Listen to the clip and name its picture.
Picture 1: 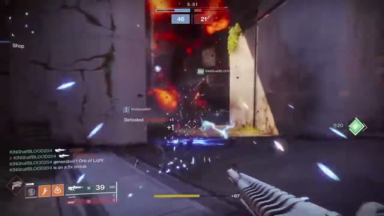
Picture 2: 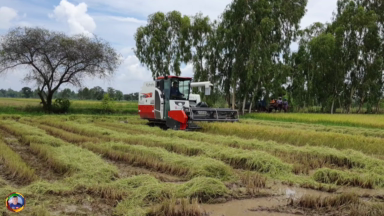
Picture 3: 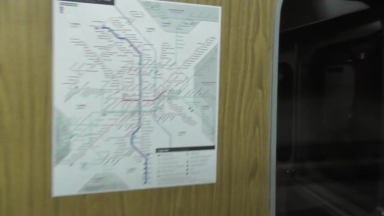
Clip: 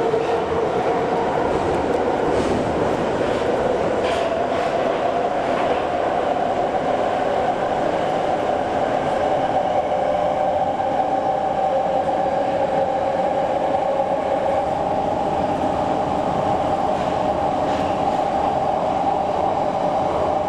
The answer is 3